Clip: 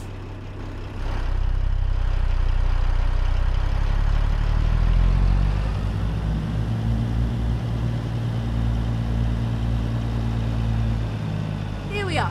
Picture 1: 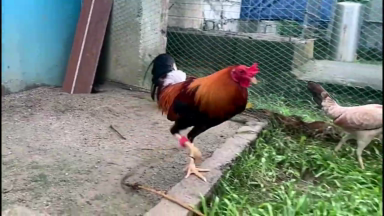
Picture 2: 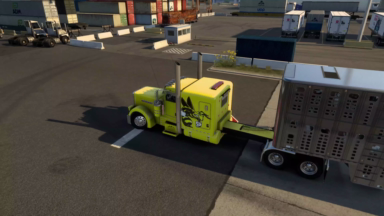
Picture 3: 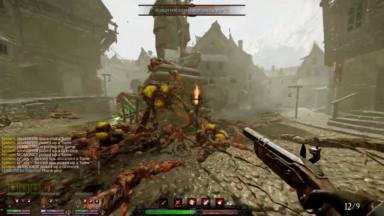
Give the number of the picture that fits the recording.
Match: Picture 2